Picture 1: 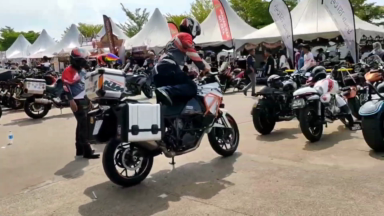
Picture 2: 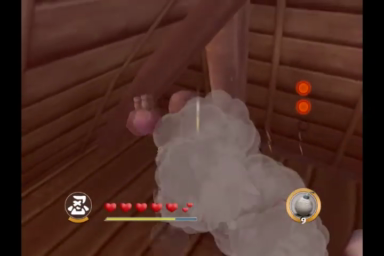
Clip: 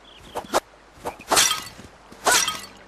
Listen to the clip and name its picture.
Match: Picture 2